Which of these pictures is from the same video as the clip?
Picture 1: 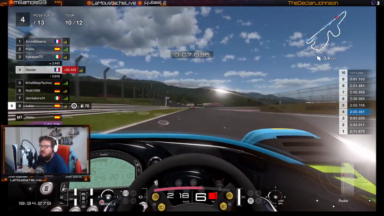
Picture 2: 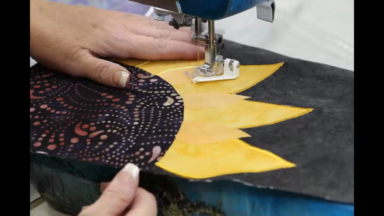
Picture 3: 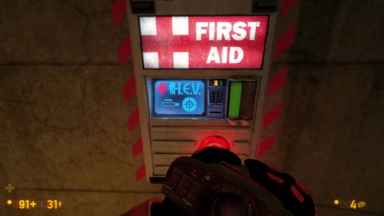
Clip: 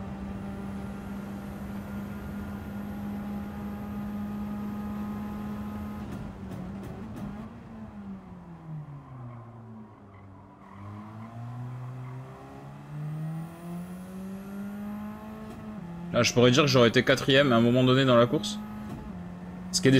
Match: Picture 1